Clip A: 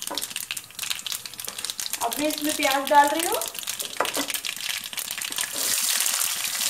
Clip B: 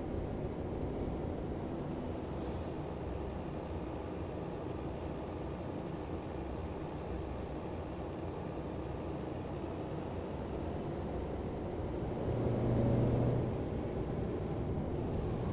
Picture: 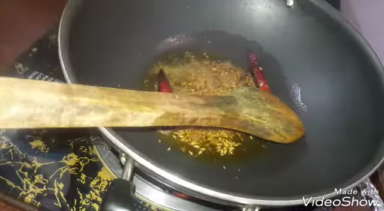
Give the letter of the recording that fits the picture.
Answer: A